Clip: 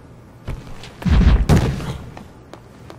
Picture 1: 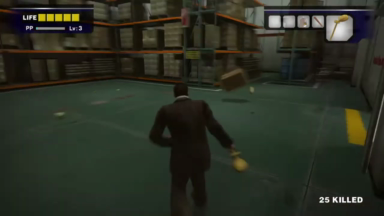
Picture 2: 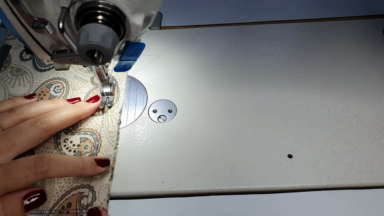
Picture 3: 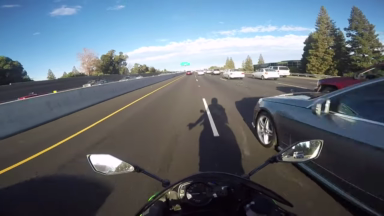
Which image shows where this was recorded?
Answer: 1